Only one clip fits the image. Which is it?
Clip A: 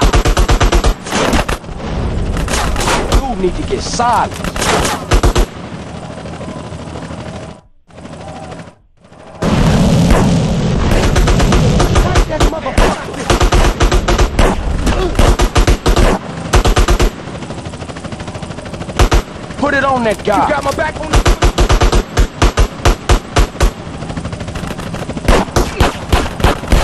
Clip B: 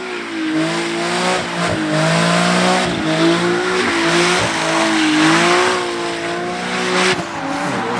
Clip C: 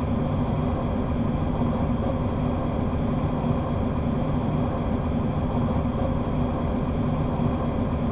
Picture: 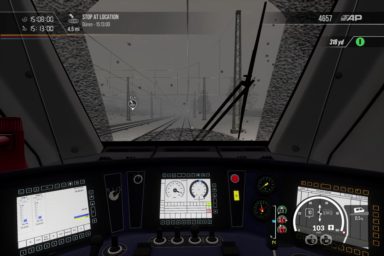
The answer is C